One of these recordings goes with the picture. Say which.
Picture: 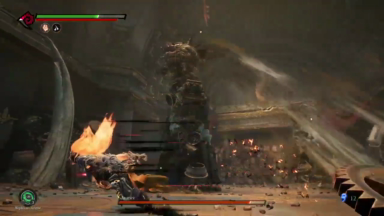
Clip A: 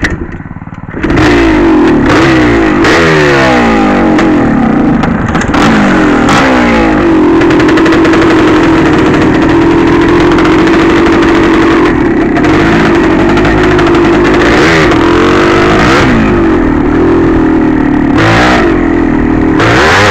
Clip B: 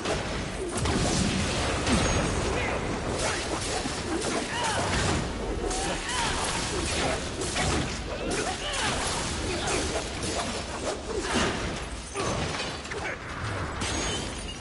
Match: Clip B